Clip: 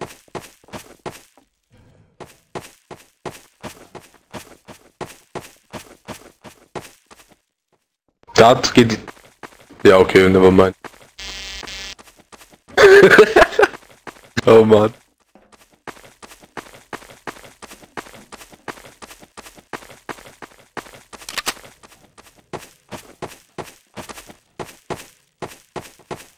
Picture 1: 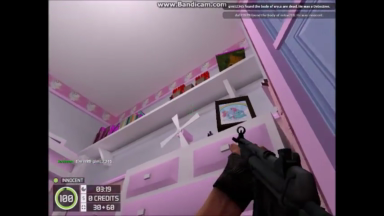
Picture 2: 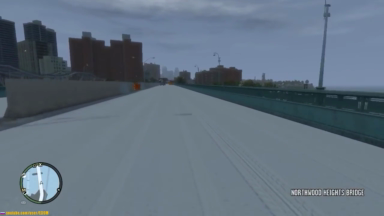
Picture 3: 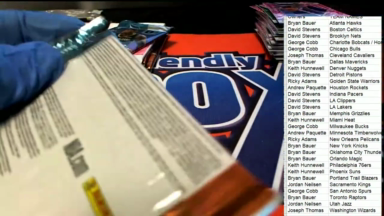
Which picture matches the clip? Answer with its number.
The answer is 1